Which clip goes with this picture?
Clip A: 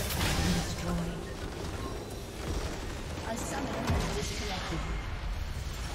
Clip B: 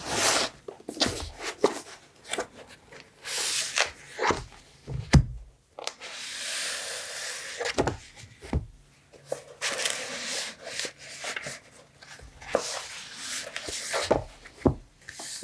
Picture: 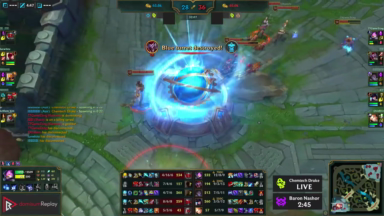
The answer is A